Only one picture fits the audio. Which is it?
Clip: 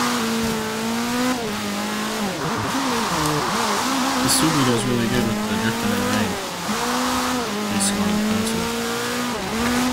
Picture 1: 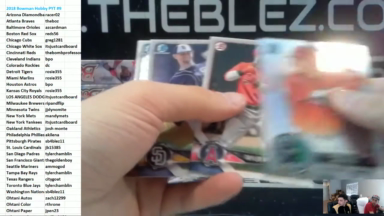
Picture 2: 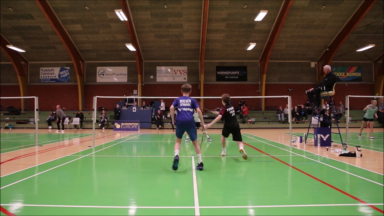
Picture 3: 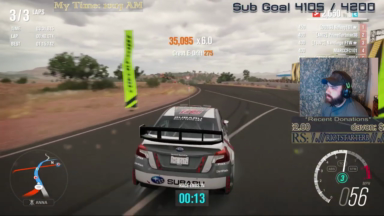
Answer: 3